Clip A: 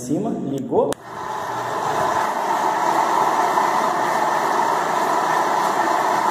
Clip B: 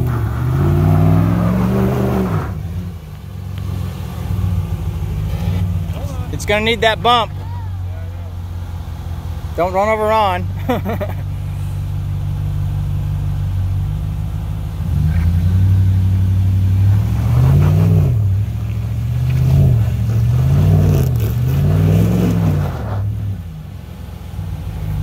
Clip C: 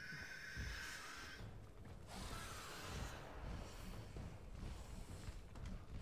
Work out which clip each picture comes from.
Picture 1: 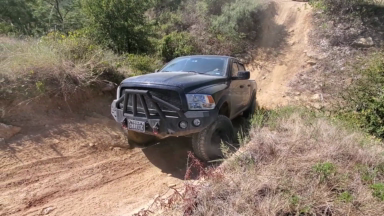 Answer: B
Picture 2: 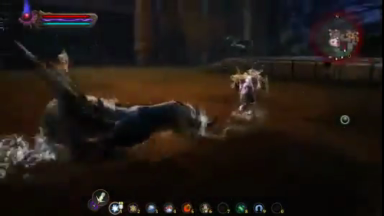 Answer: C